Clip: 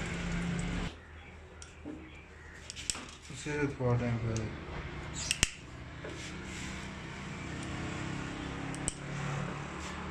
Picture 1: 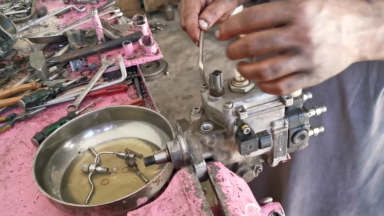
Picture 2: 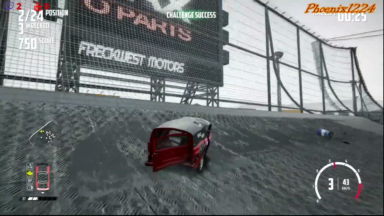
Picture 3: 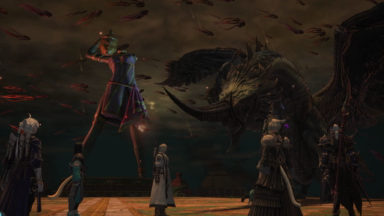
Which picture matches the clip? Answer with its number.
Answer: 1